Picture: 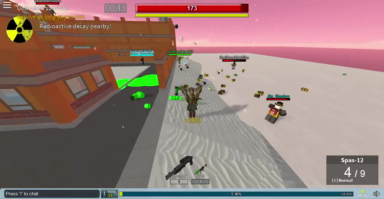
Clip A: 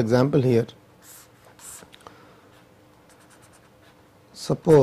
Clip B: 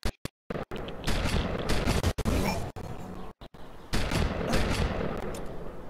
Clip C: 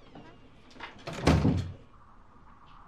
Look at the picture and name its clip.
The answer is B